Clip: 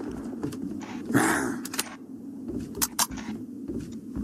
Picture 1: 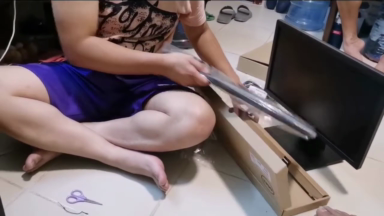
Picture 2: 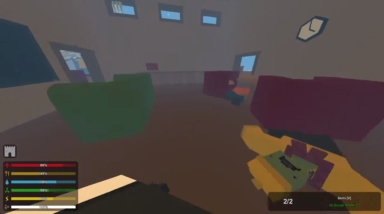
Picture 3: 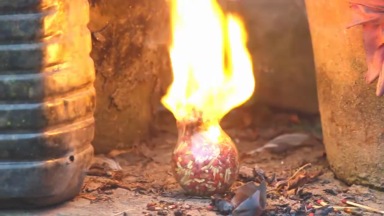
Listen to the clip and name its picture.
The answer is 2